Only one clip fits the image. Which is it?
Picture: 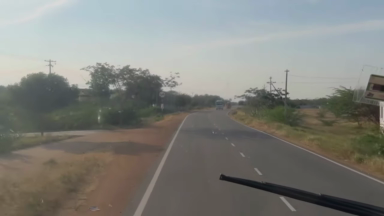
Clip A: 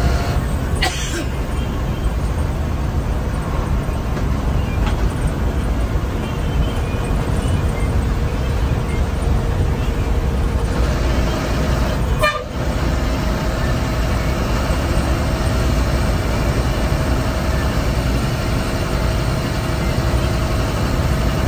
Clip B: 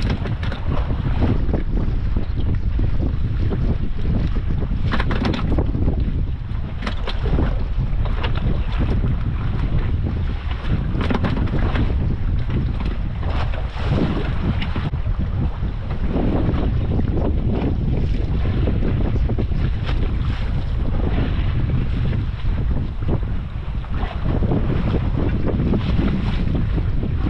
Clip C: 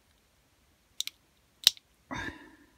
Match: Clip A